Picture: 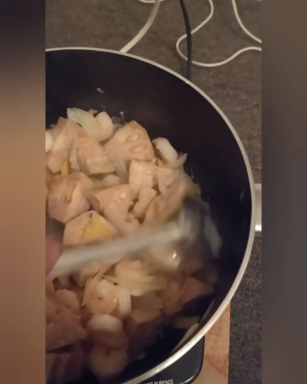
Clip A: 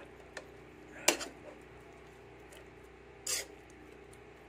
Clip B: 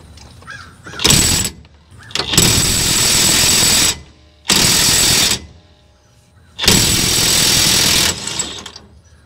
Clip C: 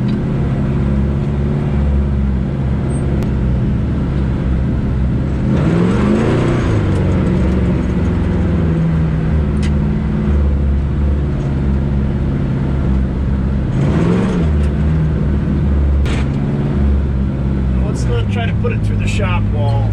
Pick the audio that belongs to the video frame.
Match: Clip A